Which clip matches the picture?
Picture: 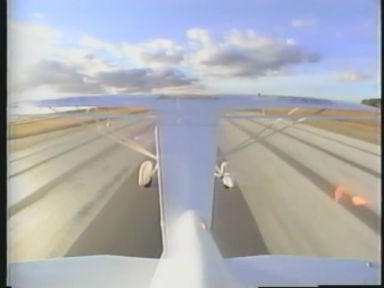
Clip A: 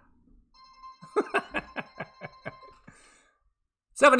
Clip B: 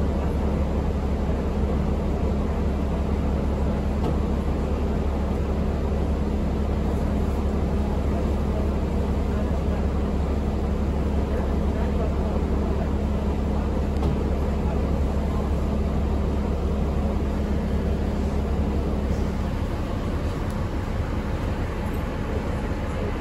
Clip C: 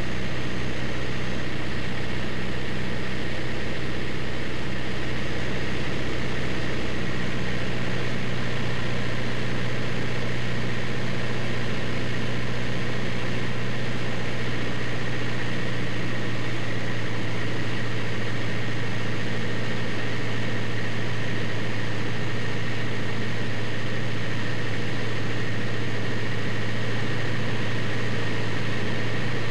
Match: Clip C